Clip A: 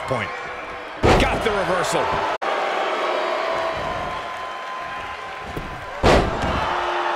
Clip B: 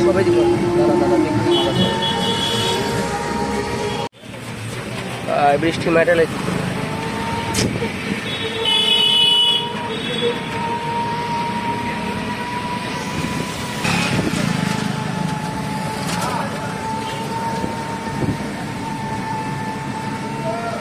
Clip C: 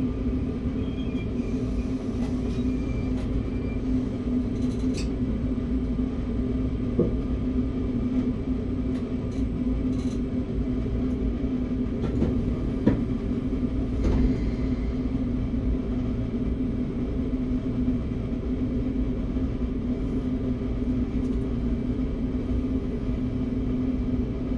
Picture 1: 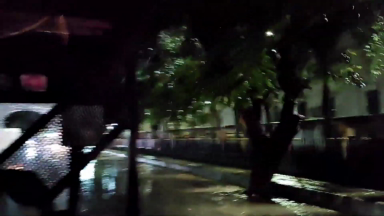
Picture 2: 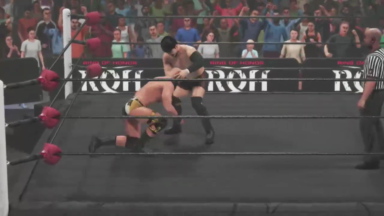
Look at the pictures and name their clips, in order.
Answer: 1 B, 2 A